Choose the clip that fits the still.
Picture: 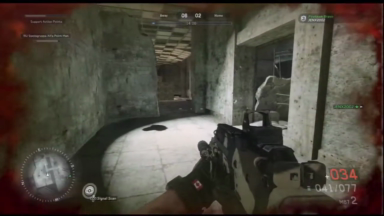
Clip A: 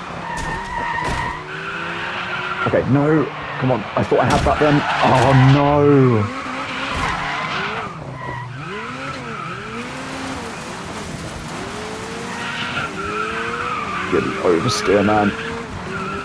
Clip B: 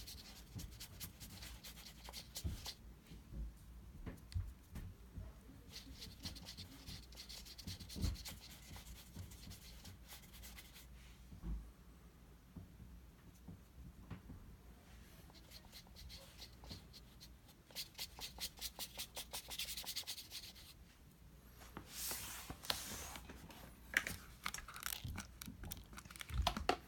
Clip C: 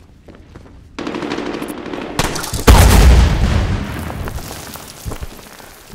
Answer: C